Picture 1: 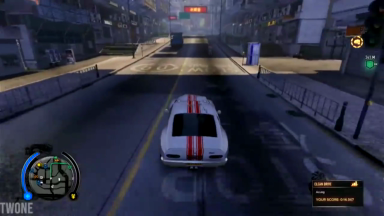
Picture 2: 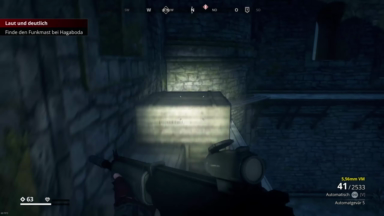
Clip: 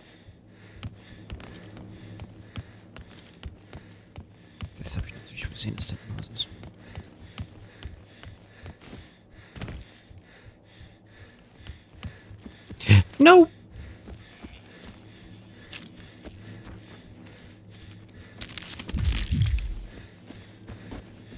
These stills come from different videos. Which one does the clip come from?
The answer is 2